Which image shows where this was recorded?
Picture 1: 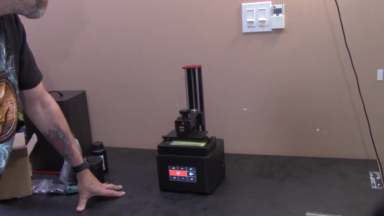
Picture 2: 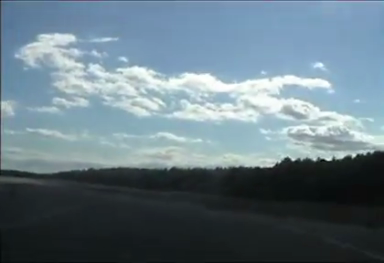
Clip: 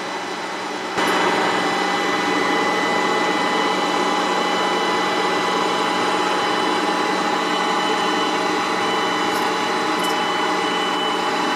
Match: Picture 1